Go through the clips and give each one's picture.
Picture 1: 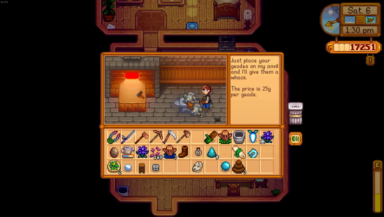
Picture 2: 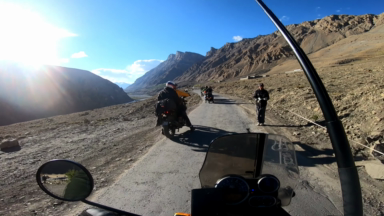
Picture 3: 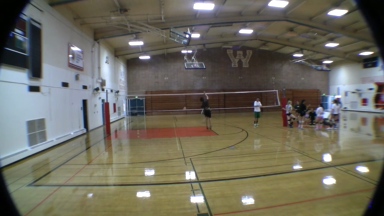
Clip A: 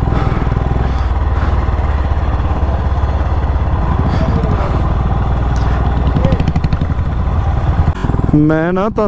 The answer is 2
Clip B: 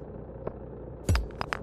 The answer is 1